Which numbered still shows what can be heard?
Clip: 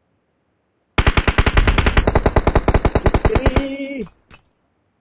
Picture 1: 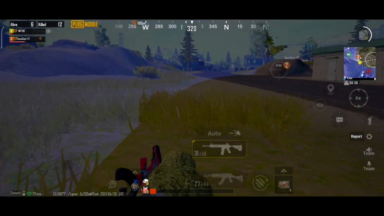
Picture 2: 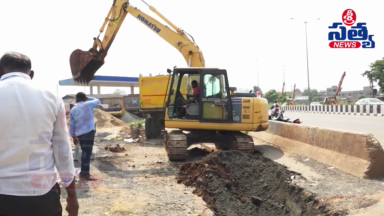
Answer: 1